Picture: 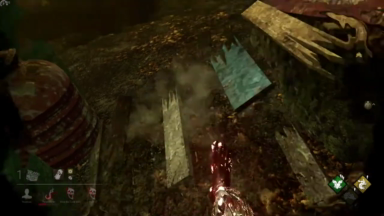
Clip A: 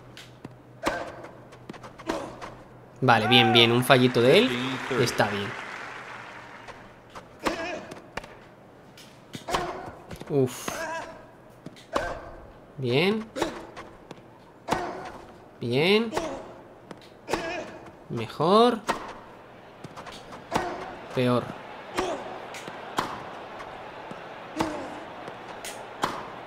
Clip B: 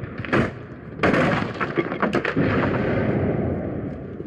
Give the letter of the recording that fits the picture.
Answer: B